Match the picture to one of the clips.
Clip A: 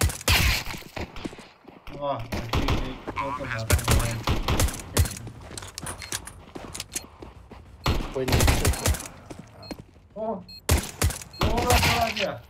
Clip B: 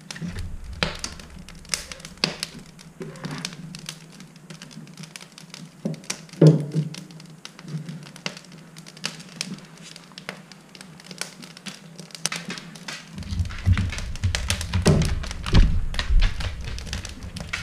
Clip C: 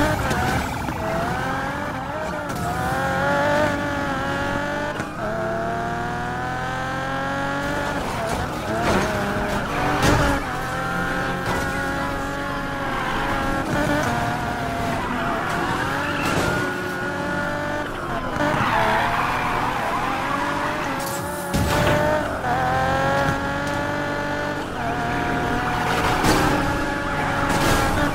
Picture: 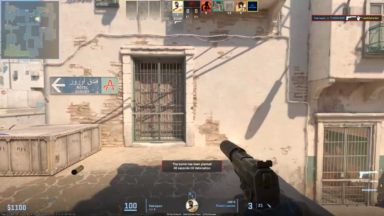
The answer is A